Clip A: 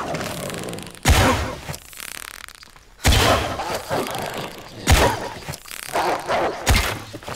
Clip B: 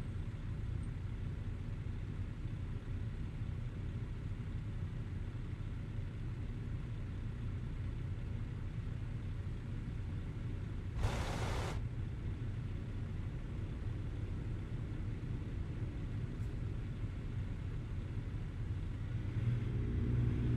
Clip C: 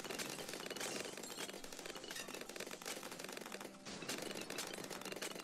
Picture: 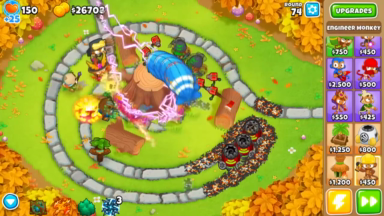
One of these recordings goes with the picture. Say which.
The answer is C